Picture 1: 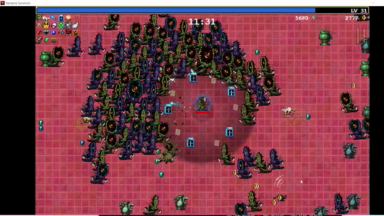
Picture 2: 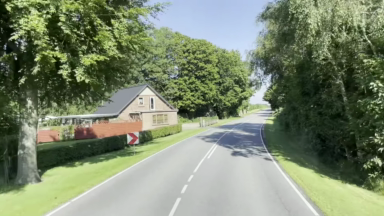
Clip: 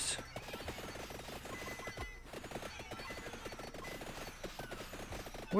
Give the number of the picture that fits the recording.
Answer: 1